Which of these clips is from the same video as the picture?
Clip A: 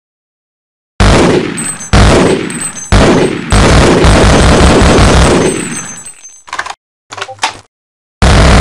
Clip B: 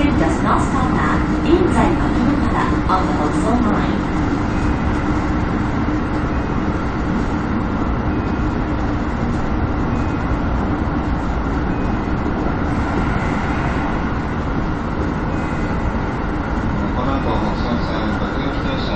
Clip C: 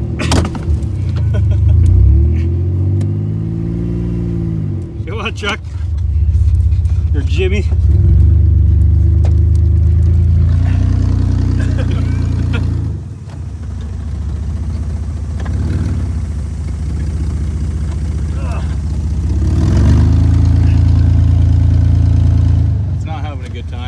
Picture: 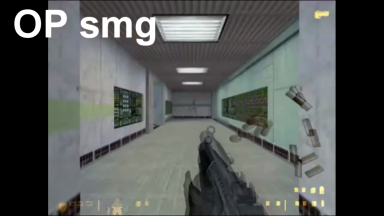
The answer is A